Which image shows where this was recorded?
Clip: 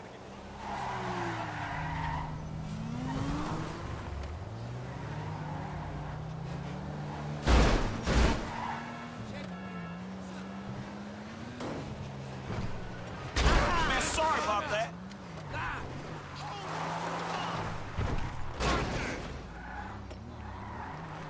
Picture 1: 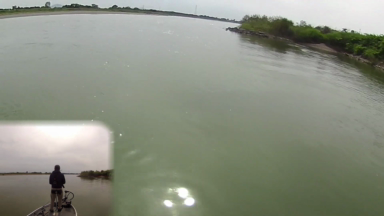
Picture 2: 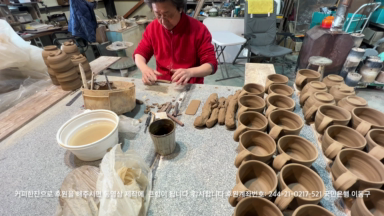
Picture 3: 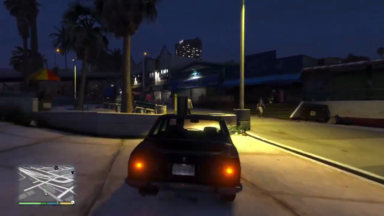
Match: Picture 3